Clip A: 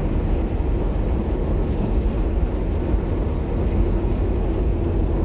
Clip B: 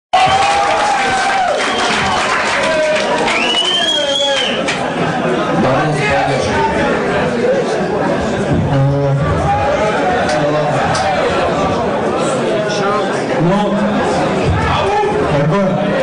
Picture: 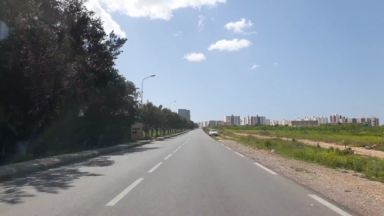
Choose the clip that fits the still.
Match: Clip A